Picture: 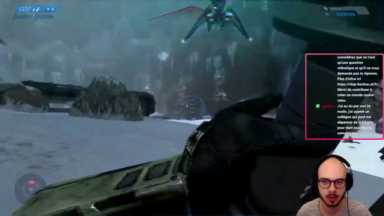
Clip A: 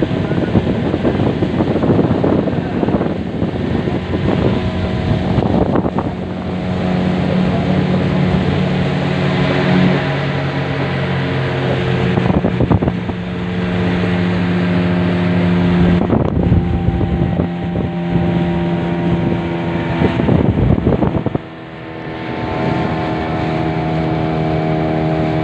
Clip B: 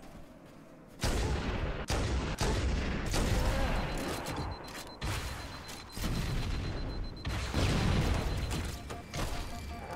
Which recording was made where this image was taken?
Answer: B